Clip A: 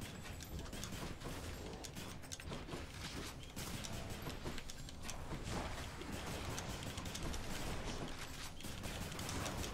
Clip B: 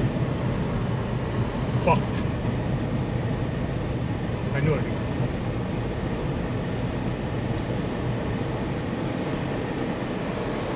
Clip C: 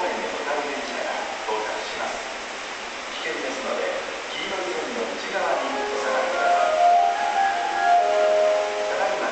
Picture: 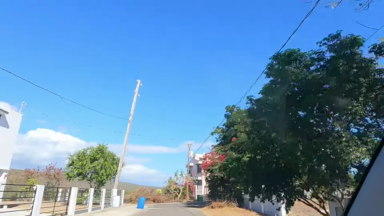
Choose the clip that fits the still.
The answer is B